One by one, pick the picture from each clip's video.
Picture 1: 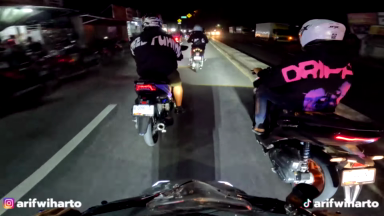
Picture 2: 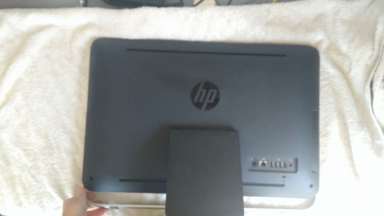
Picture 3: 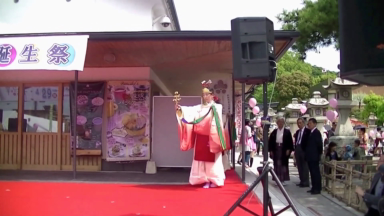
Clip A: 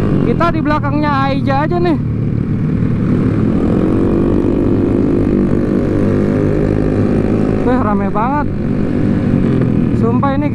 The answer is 1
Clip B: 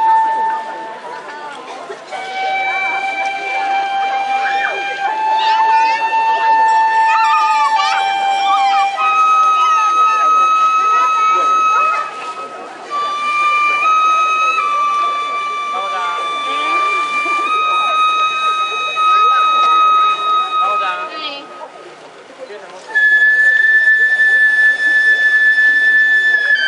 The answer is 3